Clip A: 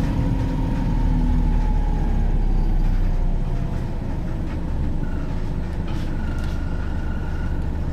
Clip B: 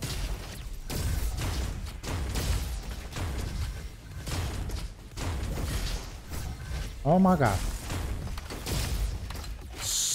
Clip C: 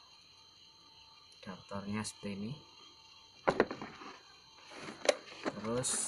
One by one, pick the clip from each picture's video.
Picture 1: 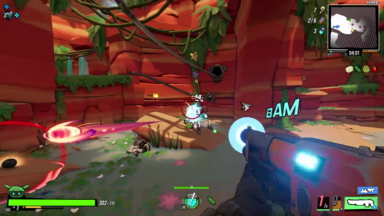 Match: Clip B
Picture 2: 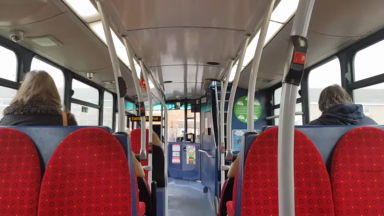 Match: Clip A